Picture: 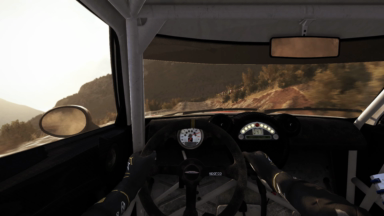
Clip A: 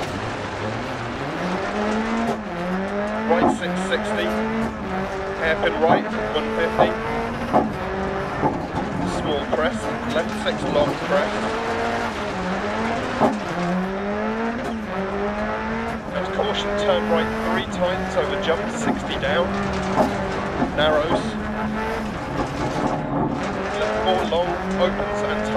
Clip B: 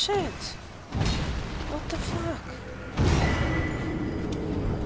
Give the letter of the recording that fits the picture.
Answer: A